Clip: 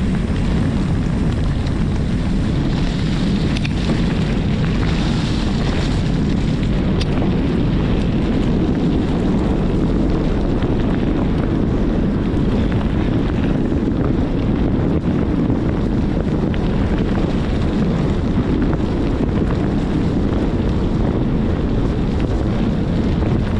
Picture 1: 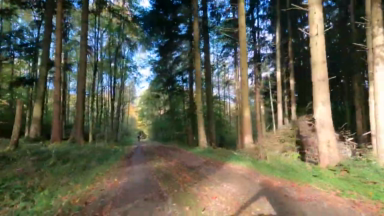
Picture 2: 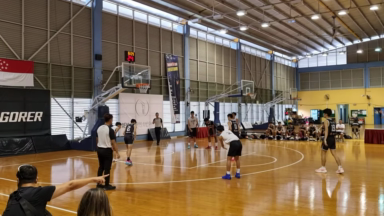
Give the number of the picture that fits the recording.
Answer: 1